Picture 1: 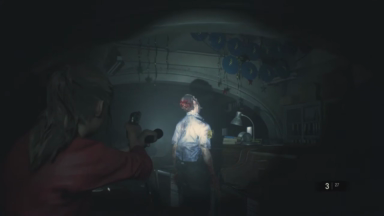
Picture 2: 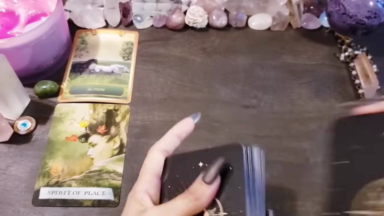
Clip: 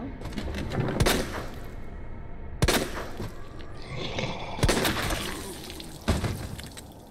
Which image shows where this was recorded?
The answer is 1